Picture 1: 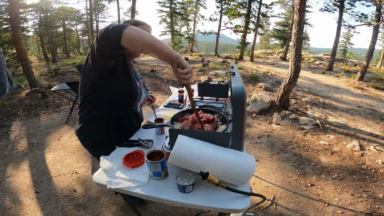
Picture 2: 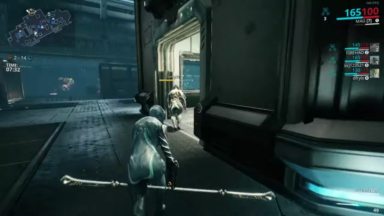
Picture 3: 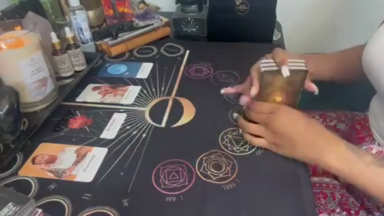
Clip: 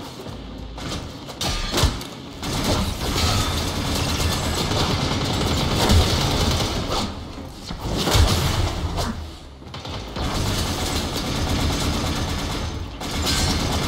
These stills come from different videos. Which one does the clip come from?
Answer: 2